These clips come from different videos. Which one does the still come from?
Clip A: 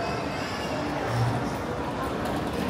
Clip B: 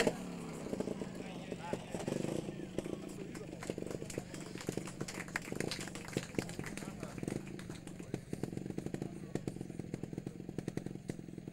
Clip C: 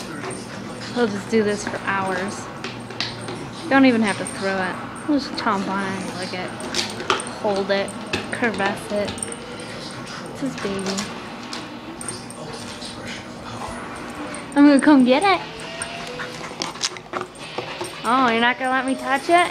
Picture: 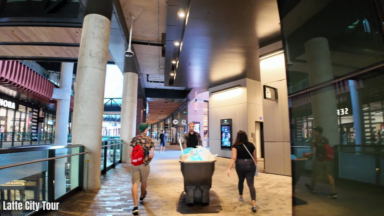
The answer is A